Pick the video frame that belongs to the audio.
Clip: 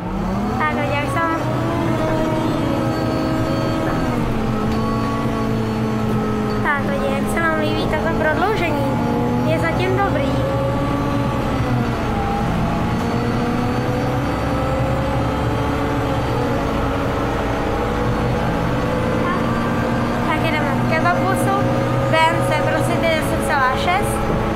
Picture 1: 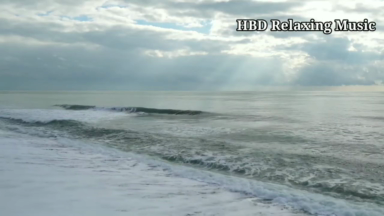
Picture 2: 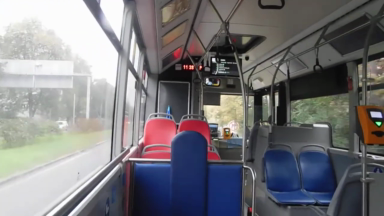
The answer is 2